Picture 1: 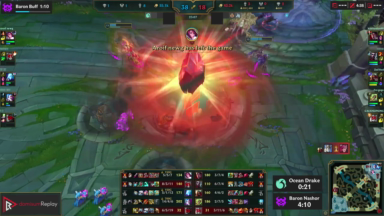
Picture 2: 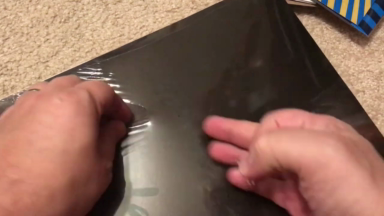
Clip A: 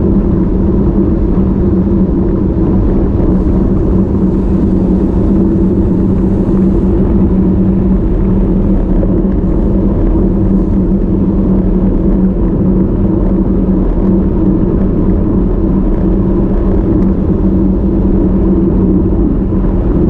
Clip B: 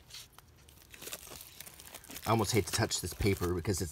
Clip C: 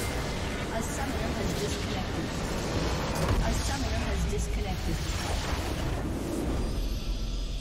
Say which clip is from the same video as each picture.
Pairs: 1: C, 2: B